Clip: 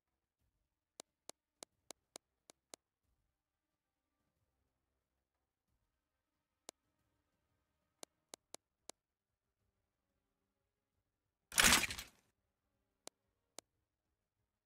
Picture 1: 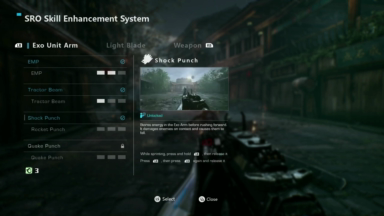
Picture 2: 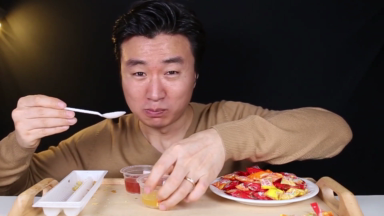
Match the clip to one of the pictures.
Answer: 1